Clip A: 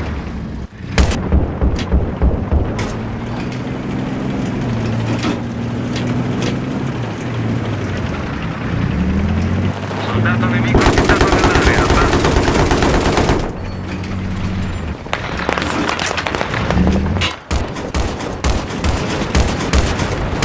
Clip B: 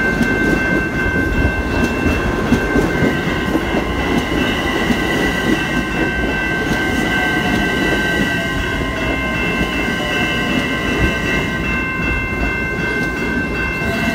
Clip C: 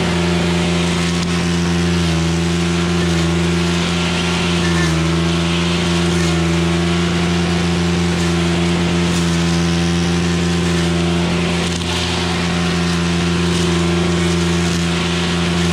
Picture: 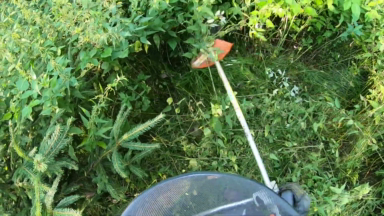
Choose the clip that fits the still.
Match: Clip C